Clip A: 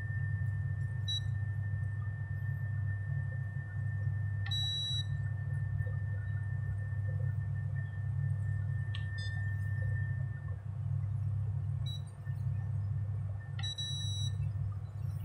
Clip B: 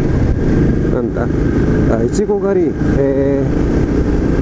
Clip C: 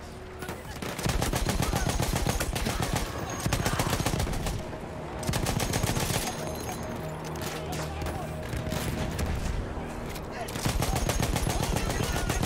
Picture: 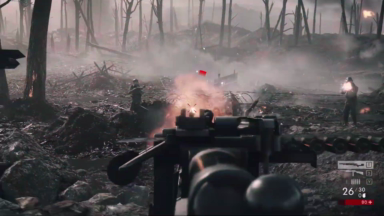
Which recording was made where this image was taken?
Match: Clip C